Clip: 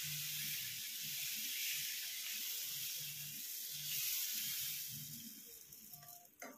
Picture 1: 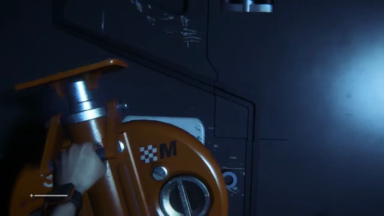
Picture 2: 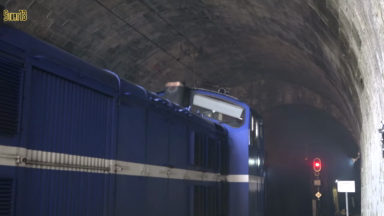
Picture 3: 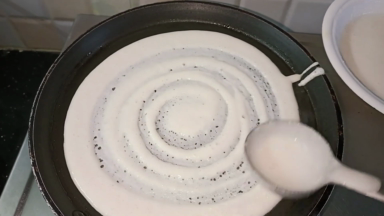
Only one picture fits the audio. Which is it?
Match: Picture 3